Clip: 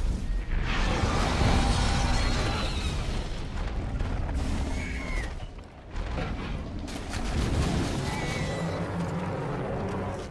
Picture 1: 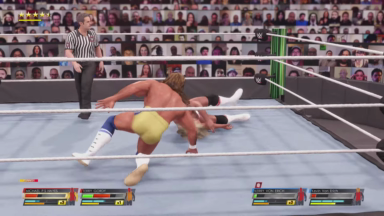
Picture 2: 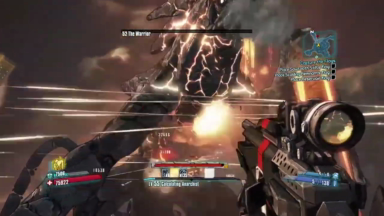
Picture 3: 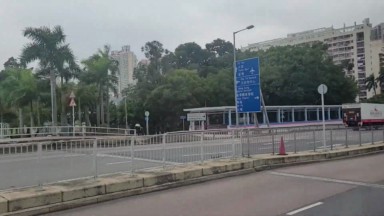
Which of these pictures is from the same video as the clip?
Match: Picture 2